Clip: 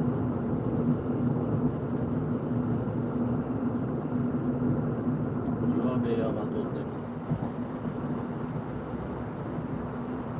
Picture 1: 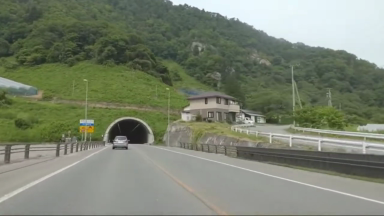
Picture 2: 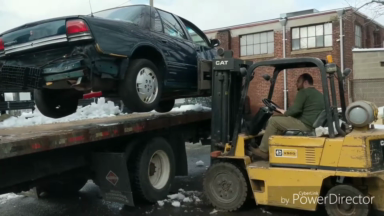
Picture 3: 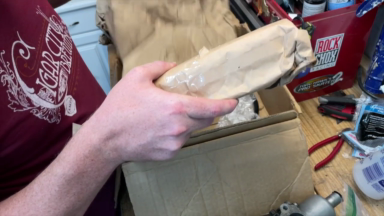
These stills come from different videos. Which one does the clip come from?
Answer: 1